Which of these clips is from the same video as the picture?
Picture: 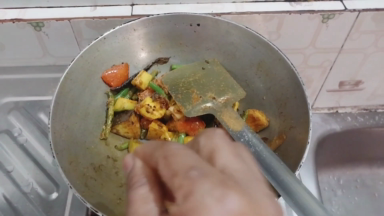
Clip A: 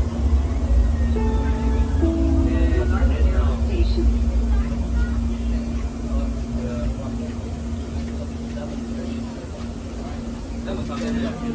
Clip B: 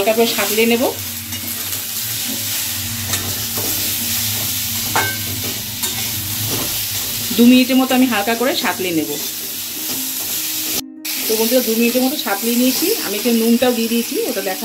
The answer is B